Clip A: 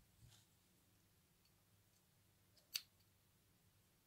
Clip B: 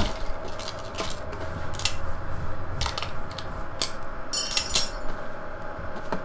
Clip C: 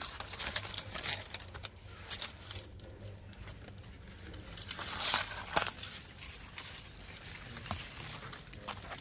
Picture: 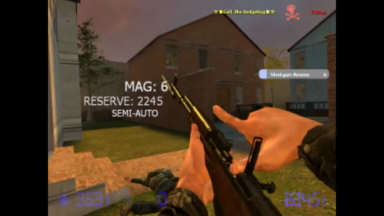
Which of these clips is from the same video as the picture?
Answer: B